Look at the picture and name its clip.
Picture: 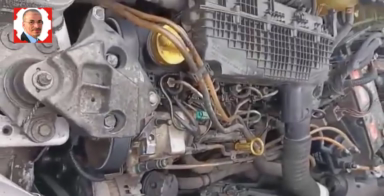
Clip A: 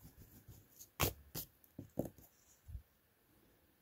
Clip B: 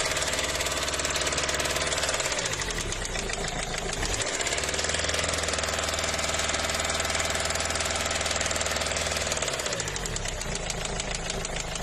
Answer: B